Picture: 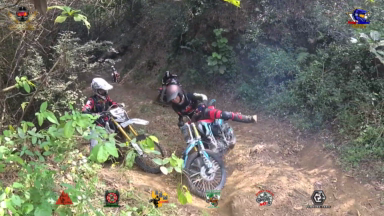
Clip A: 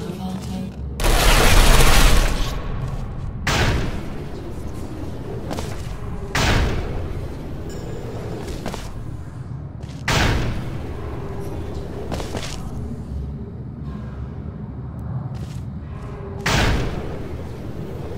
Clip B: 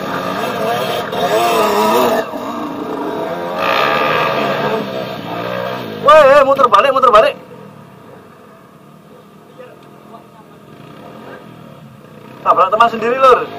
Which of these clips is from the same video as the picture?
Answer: B